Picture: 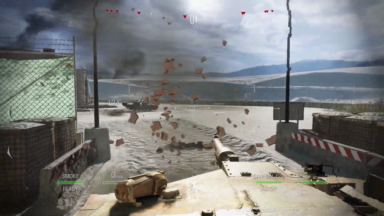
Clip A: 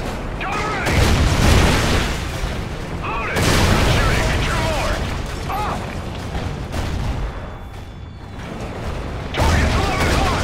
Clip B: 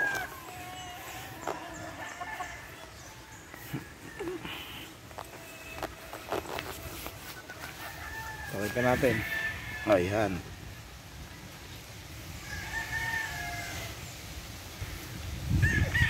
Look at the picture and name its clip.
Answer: A